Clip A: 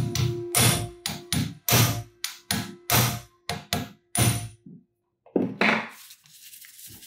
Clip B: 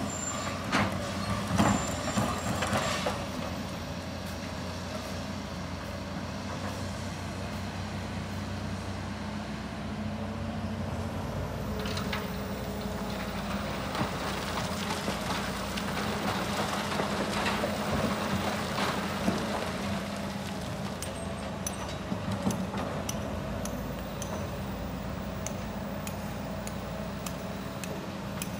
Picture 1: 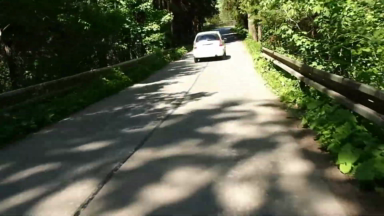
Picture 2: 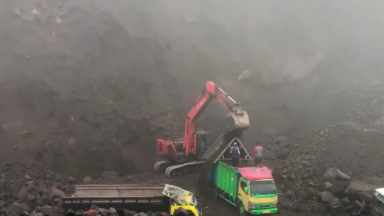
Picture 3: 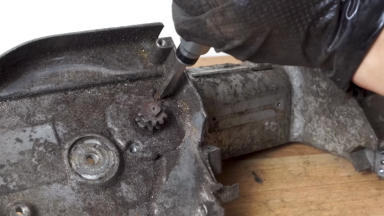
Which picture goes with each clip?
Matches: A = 3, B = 2